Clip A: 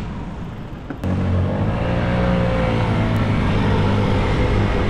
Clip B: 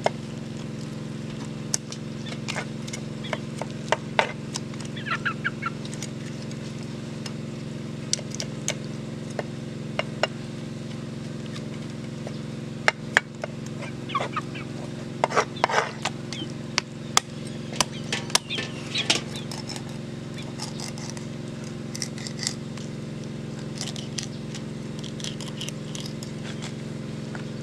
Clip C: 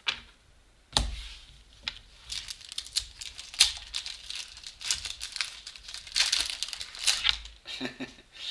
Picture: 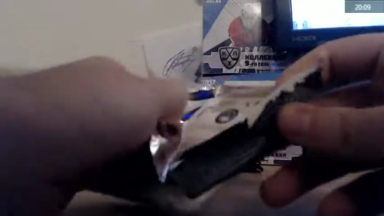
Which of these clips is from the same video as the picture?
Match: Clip C